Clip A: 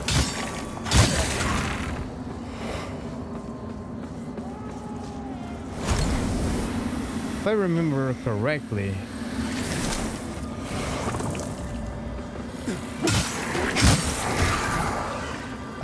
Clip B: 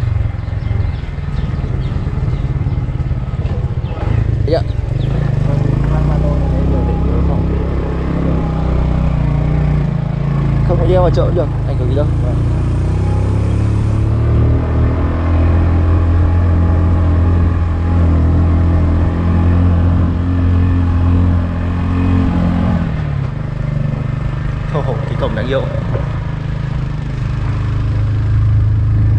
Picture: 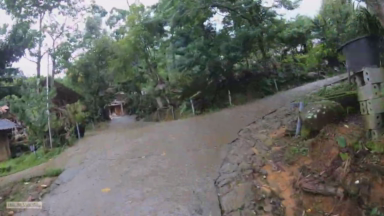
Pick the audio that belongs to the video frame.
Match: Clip B